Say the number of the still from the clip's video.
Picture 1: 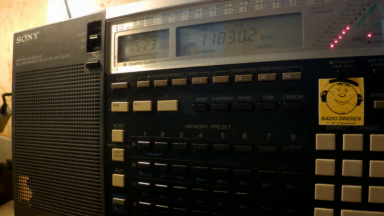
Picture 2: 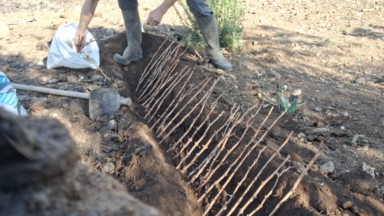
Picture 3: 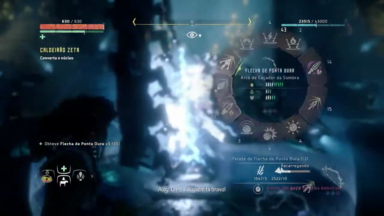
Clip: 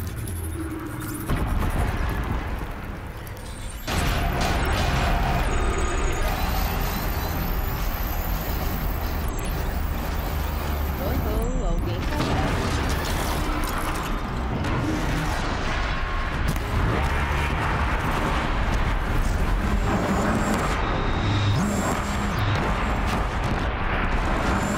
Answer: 3